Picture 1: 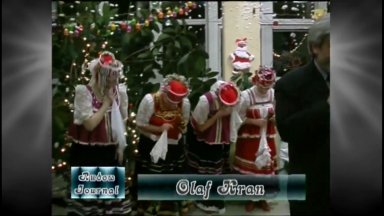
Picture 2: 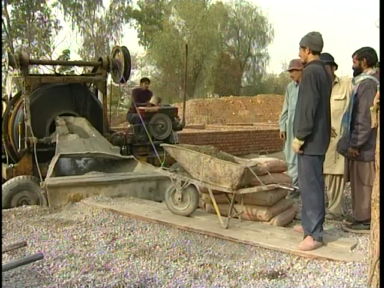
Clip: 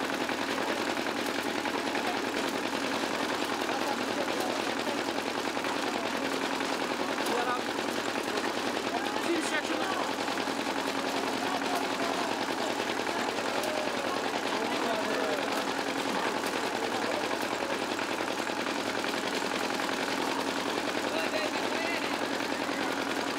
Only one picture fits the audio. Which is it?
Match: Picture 2